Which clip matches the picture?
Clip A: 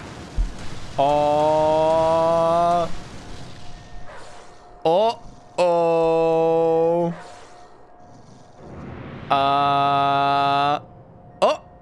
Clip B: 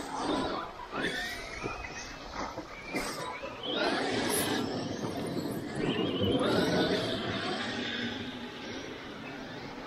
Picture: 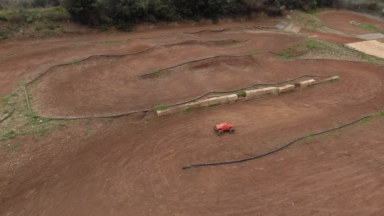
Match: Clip B